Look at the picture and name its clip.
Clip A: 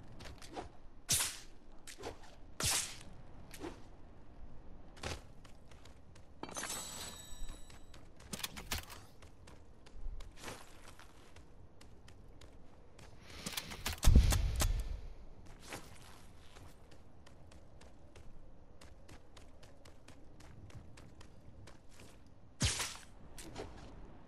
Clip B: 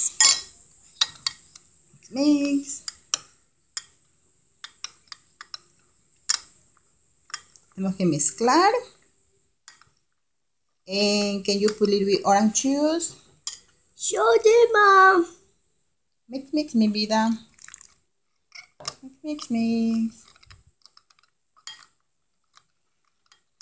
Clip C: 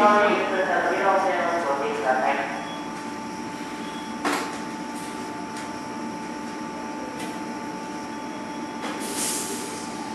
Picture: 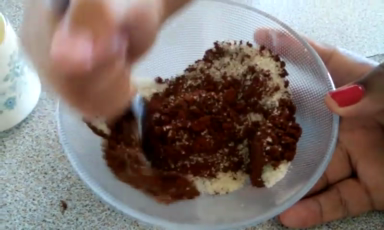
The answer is B